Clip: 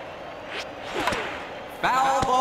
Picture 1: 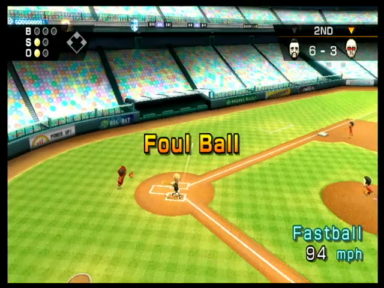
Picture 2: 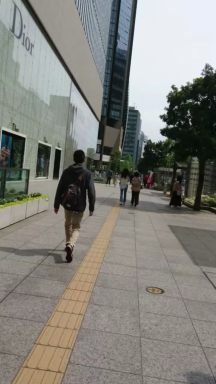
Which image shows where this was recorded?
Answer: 1